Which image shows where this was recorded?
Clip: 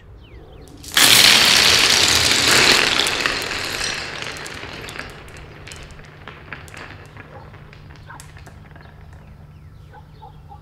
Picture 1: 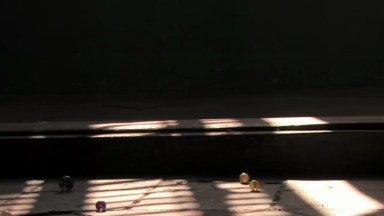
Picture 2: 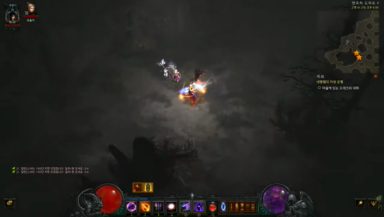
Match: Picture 1